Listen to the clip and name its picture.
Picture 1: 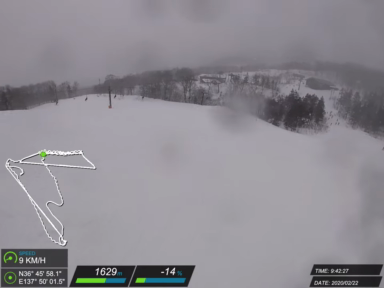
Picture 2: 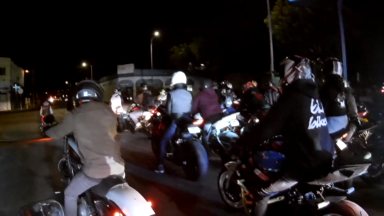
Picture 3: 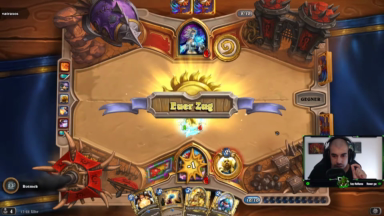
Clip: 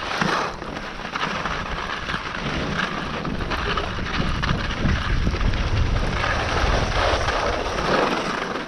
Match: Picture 1